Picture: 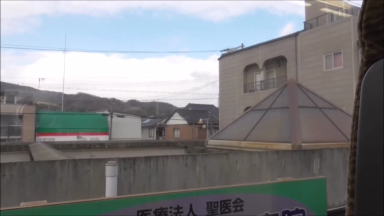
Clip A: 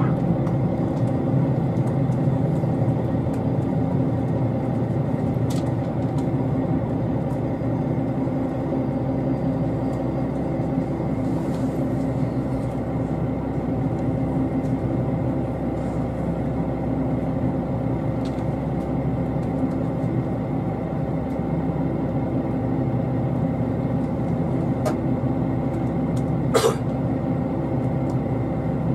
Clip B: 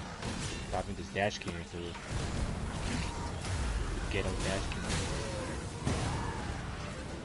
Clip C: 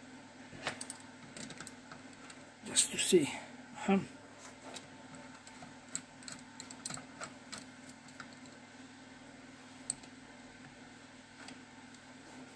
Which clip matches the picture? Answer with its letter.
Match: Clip A